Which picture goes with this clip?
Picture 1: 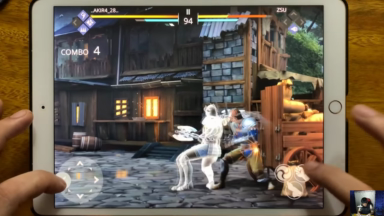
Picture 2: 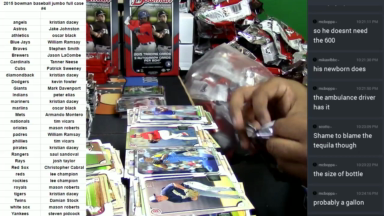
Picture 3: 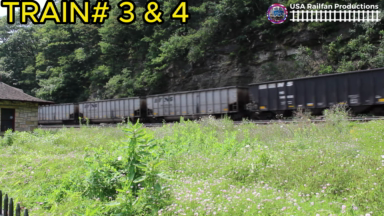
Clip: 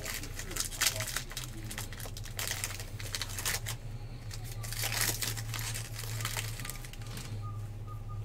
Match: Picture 2